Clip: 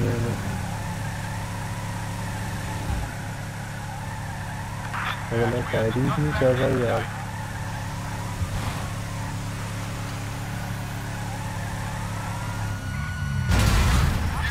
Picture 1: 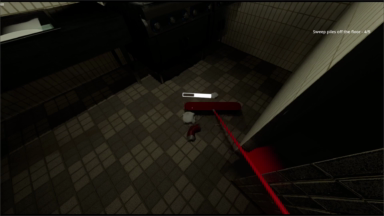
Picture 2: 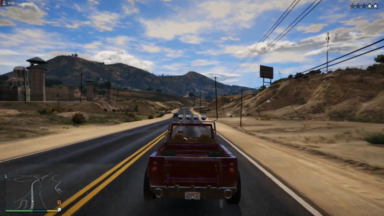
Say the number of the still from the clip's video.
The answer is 2